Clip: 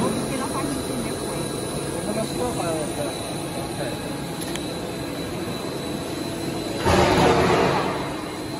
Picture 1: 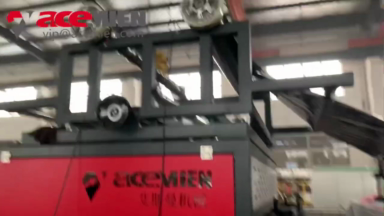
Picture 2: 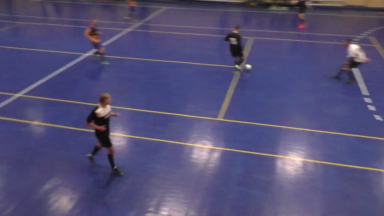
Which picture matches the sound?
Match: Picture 1